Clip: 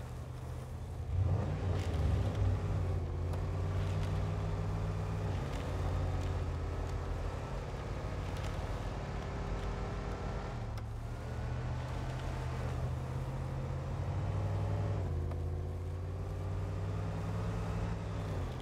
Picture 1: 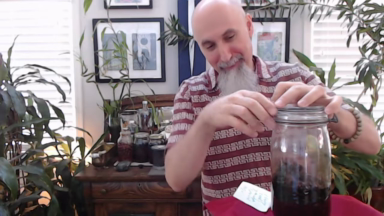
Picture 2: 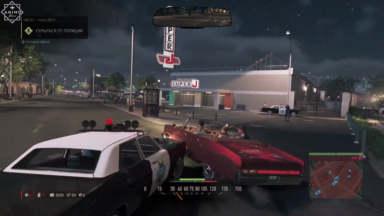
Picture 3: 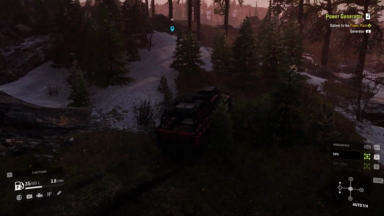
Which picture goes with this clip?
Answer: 3